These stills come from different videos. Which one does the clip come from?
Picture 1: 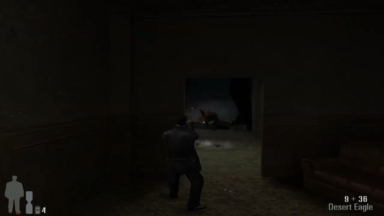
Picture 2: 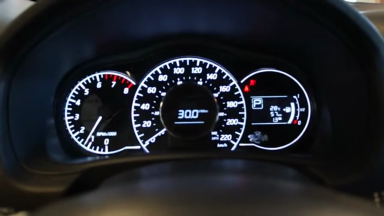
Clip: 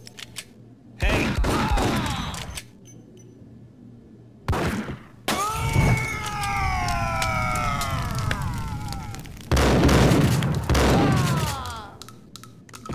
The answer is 1